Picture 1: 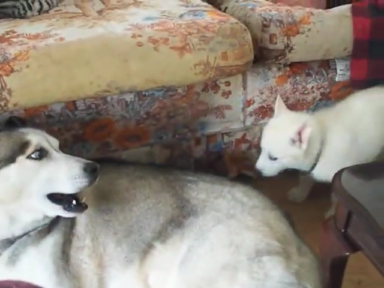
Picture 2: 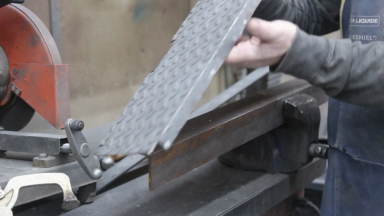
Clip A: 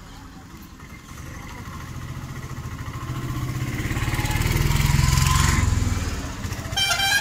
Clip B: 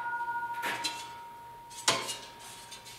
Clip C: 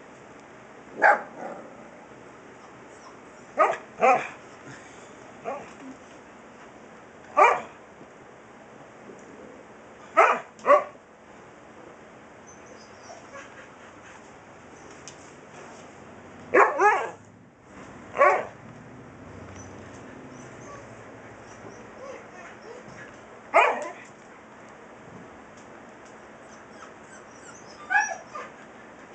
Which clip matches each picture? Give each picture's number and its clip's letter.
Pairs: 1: C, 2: B